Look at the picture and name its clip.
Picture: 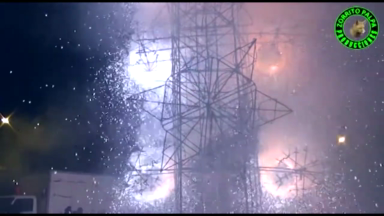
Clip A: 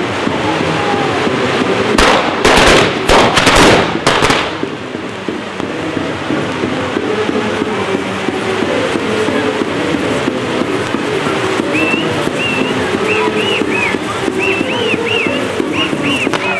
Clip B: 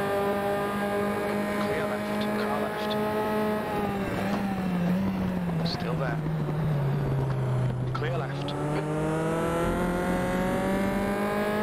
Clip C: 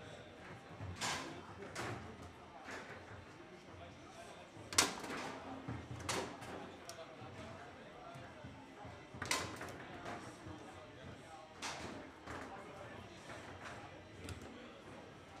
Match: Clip A